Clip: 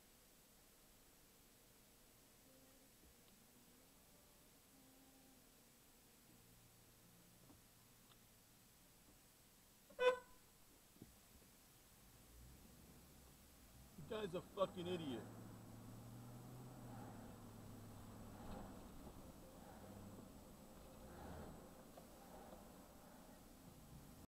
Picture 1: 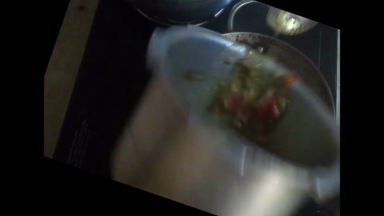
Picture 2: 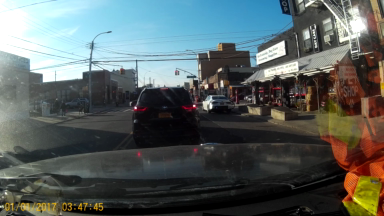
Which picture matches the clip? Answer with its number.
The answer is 2